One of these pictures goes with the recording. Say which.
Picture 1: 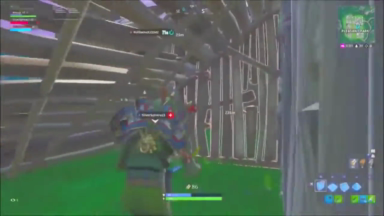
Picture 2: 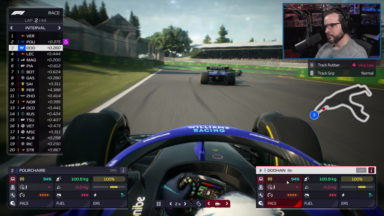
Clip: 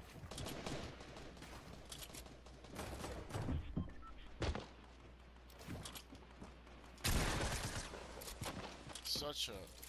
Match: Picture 1